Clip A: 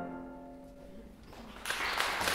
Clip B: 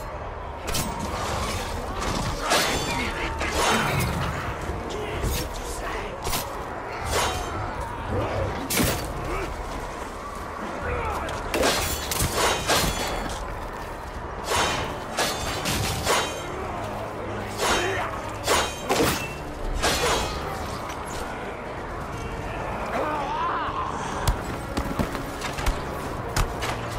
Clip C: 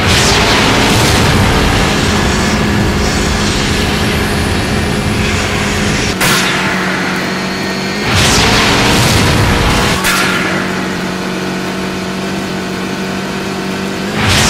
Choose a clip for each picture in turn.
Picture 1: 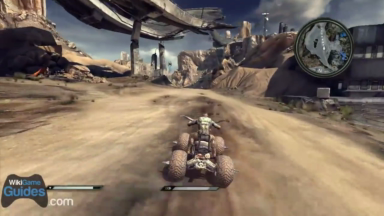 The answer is C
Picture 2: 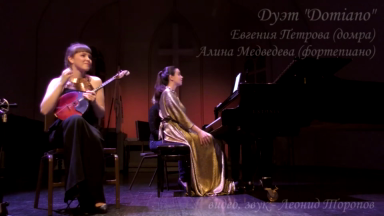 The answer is A